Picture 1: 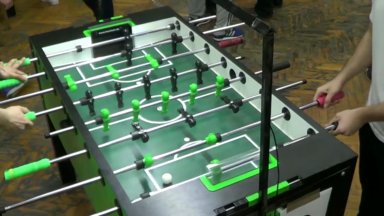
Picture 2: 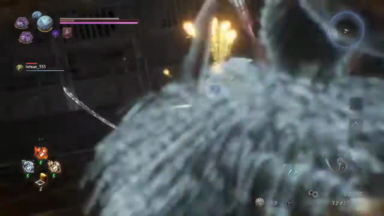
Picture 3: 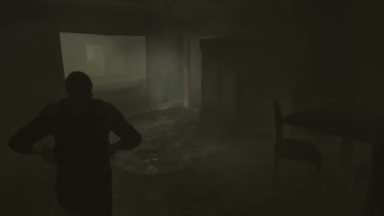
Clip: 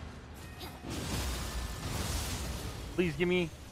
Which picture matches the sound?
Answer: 2